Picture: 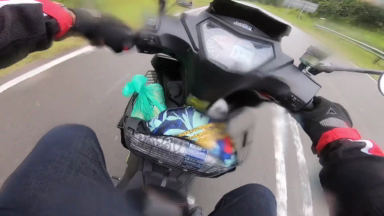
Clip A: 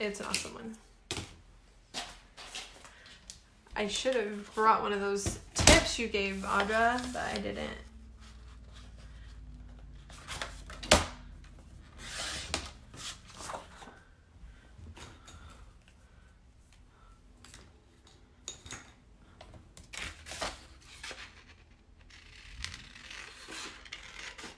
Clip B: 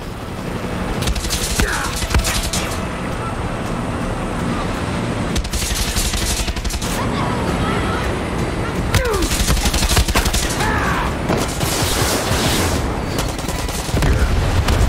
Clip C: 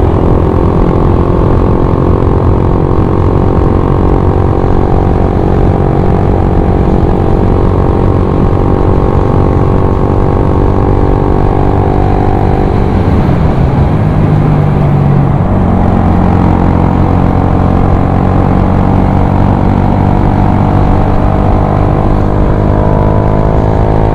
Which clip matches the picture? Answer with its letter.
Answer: C